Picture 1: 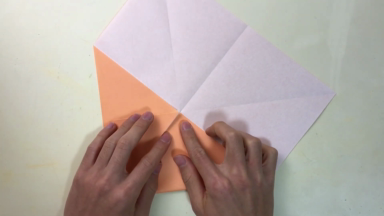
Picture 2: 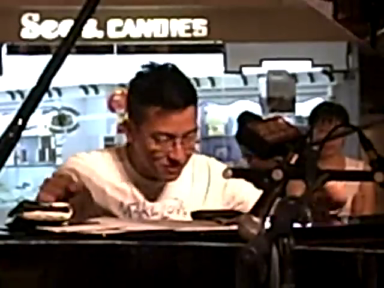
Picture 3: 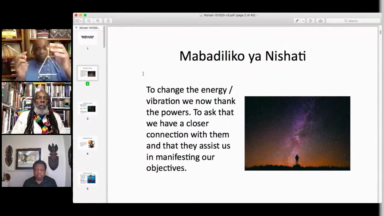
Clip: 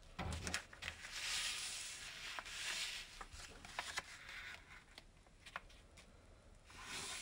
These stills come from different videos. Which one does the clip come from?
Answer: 1